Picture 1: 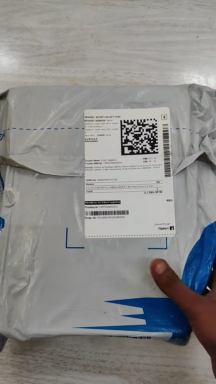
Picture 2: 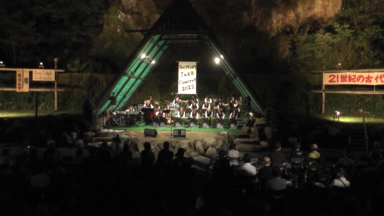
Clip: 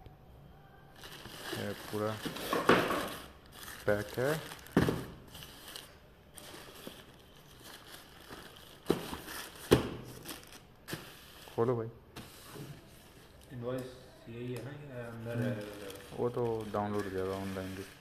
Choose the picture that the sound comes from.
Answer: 1